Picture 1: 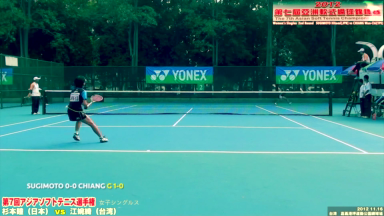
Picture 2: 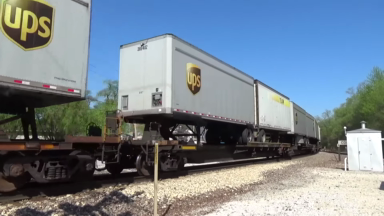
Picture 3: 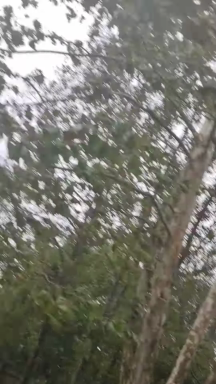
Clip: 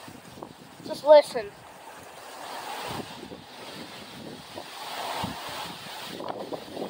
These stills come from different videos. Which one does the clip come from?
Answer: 3